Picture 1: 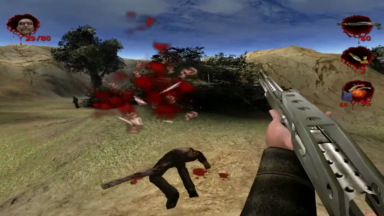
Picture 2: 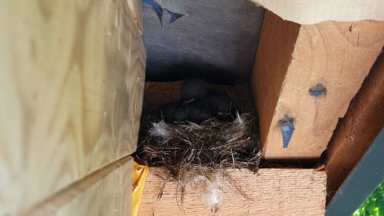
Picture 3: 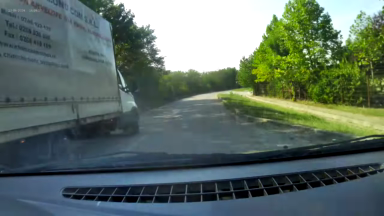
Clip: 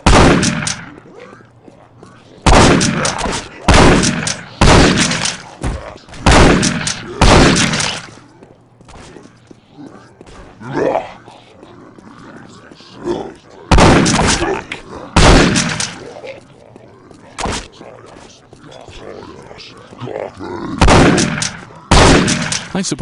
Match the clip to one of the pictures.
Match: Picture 1